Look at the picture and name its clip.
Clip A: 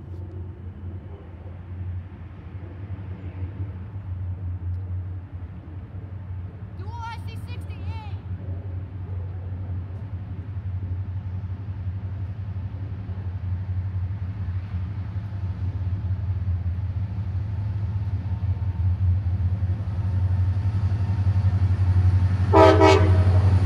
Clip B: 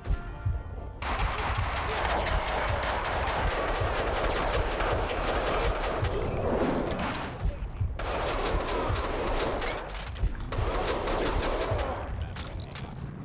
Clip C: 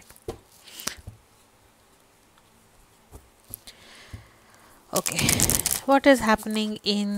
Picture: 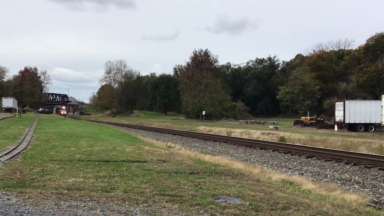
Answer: A